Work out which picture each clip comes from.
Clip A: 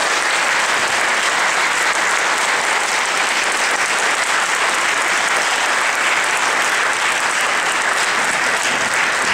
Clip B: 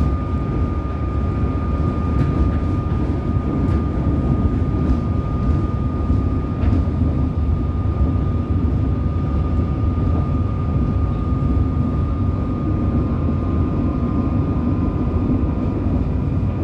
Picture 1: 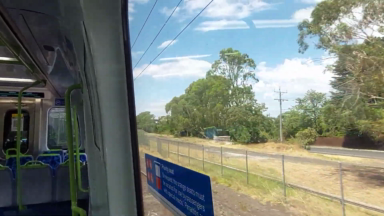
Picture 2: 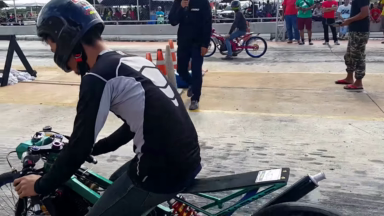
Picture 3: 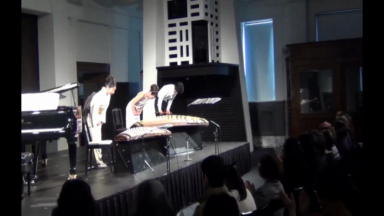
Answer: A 3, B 1